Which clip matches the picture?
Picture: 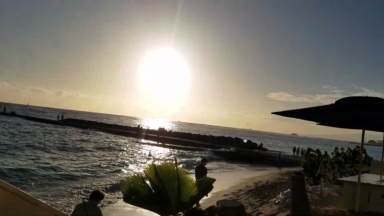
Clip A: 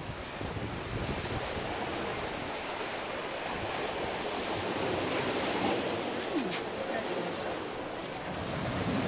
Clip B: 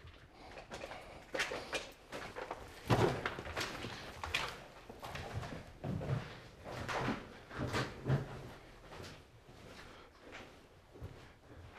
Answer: A